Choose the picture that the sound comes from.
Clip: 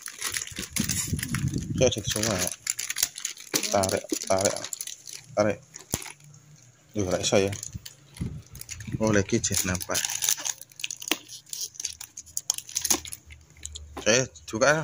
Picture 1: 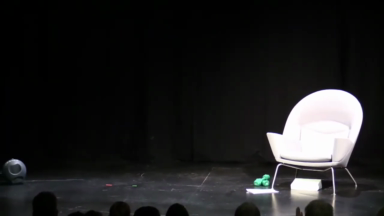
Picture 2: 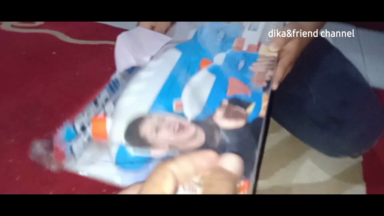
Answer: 2